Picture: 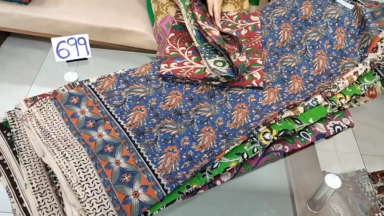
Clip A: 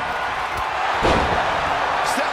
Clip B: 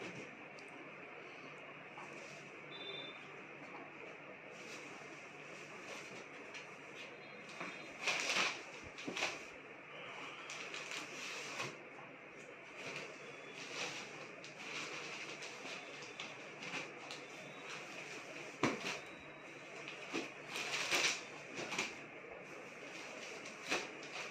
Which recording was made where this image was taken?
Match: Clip B